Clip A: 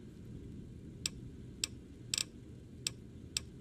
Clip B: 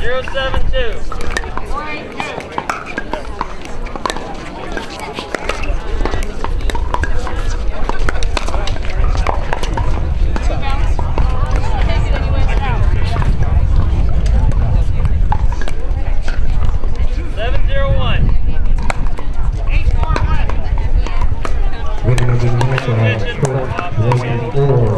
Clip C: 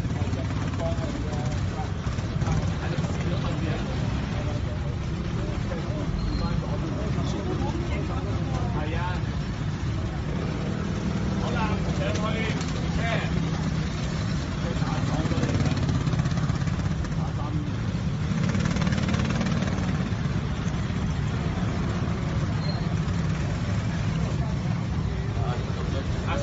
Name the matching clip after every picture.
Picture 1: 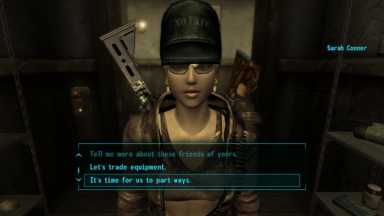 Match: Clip A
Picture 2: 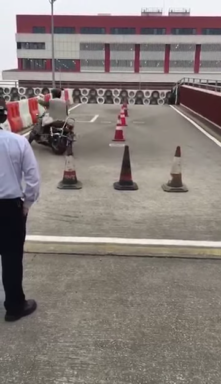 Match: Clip C